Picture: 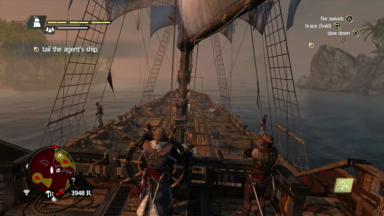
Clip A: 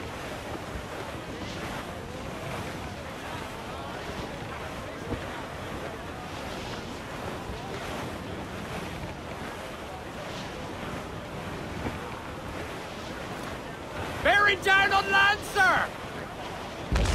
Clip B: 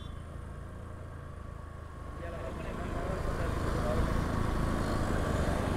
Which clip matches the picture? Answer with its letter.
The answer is A